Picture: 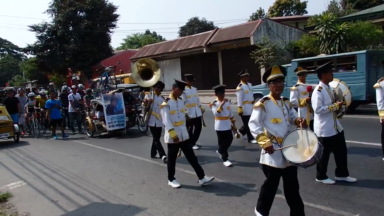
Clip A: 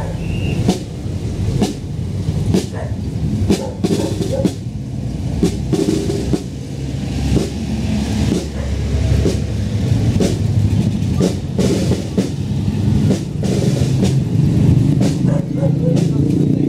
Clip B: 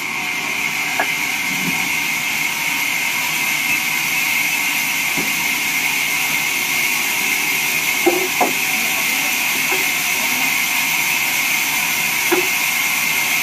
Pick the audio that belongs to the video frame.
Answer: A